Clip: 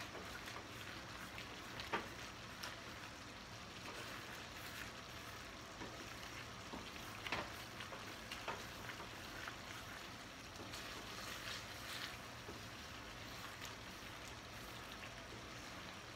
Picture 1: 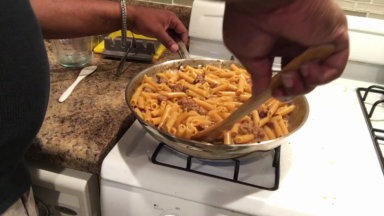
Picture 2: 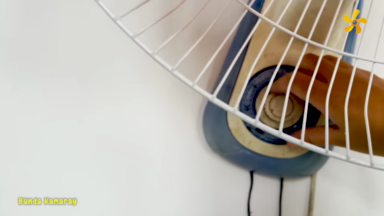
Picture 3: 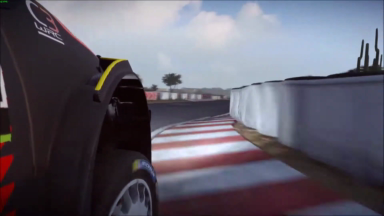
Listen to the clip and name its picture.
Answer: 1